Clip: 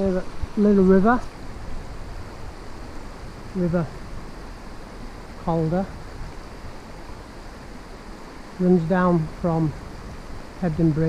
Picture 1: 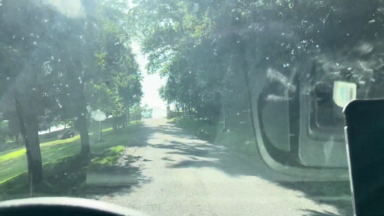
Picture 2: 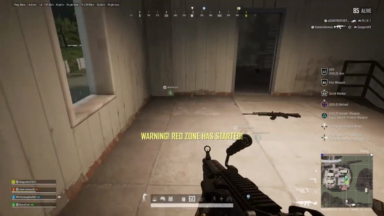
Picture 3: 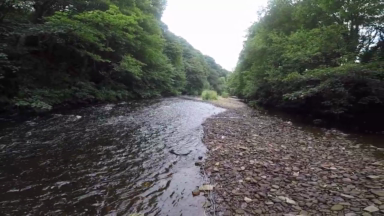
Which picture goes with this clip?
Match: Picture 3